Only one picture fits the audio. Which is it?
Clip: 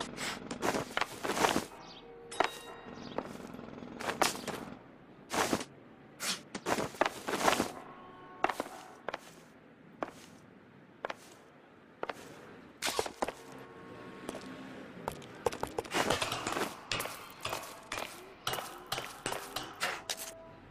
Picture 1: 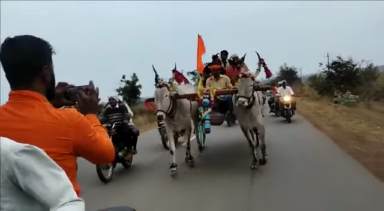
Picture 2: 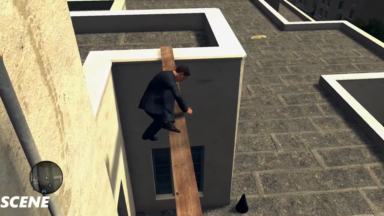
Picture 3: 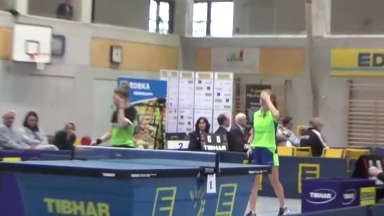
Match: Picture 2